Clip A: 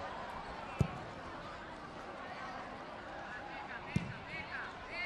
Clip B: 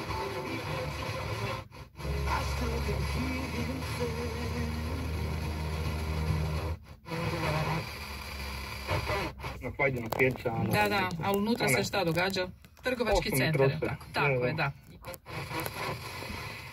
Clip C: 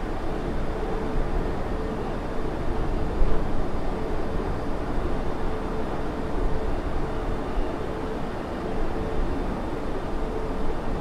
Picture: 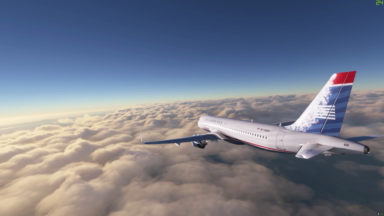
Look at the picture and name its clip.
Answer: C